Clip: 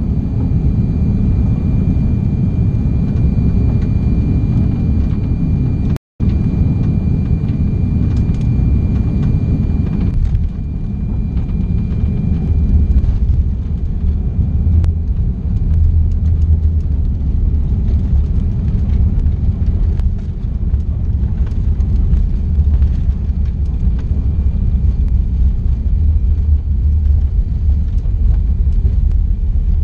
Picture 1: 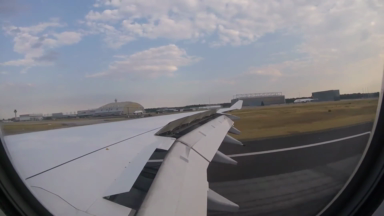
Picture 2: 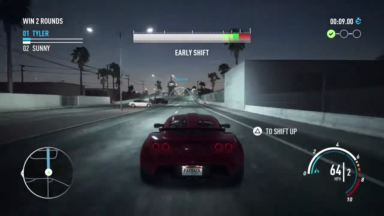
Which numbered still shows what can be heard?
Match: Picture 1